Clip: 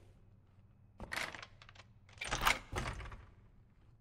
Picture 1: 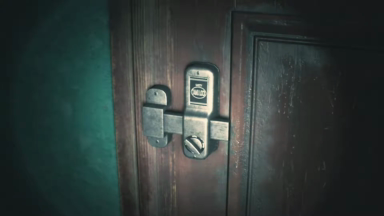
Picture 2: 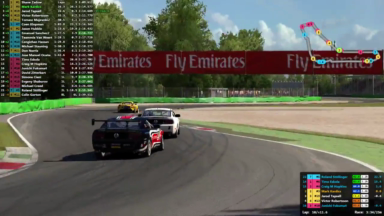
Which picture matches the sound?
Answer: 1